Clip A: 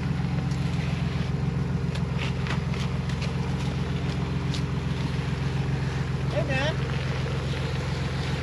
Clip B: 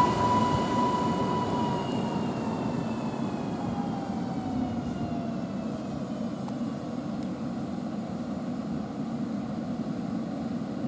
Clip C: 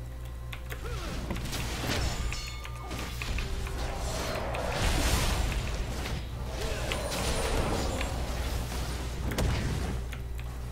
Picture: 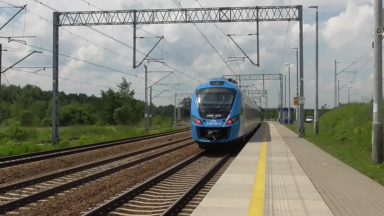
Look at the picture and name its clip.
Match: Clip B